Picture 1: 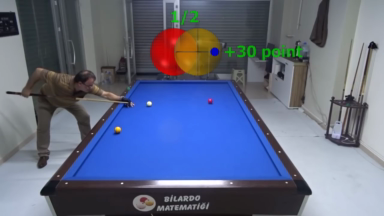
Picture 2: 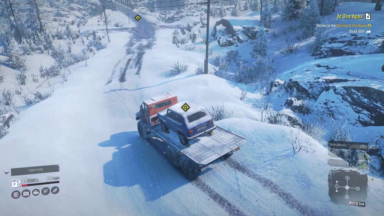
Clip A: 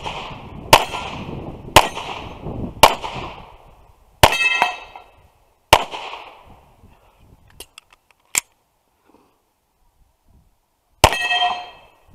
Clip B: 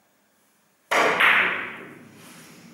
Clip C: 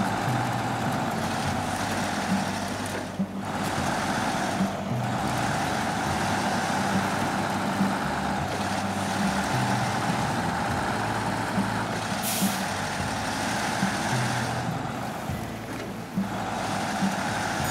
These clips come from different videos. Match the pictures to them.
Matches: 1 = B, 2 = C